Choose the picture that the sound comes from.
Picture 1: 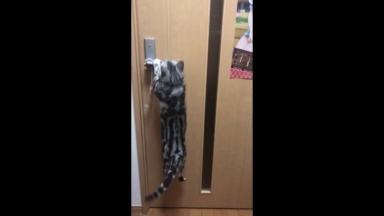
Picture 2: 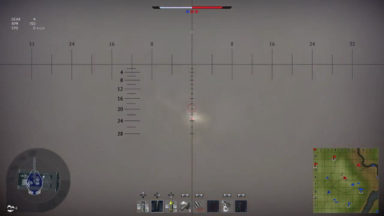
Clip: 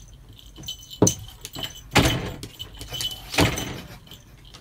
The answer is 1